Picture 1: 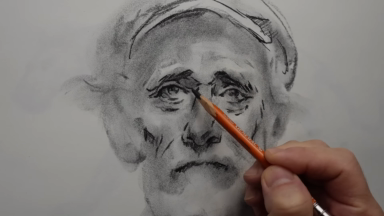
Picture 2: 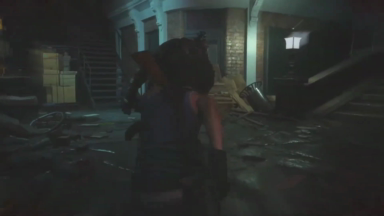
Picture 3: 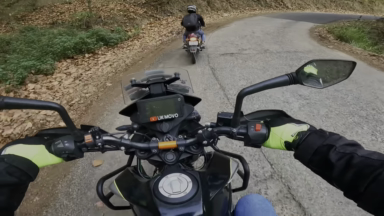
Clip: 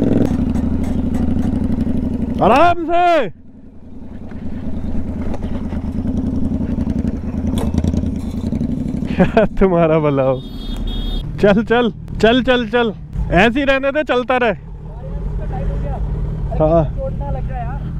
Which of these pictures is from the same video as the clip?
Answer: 3